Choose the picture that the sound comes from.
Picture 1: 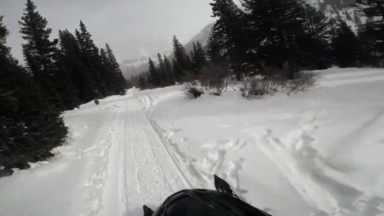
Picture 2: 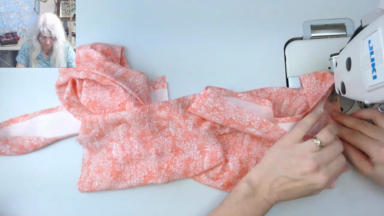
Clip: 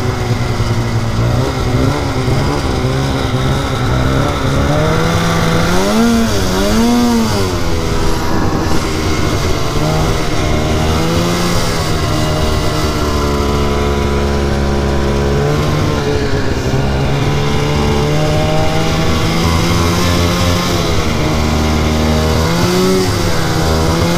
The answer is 1